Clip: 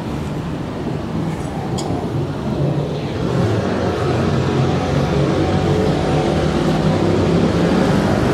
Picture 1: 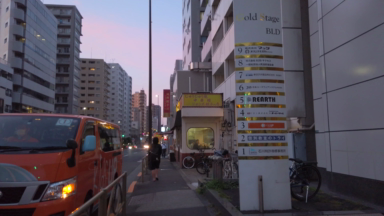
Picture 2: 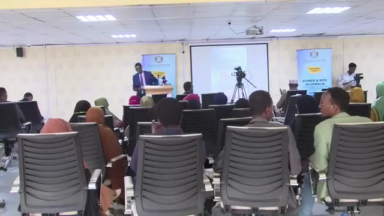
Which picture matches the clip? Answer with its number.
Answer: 1